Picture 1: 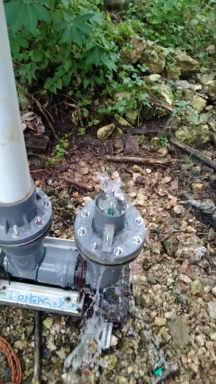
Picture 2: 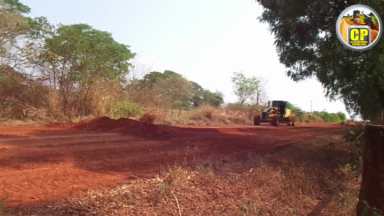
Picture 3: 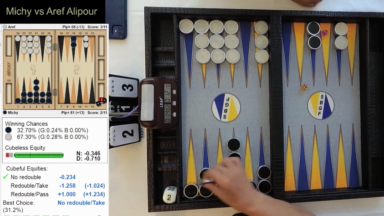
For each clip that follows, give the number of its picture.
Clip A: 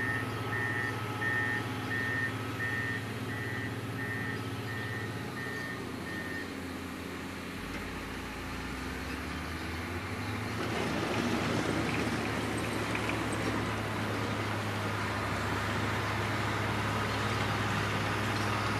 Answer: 2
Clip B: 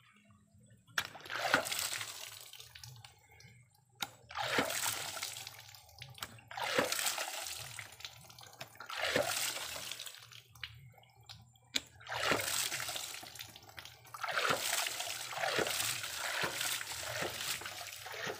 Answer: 1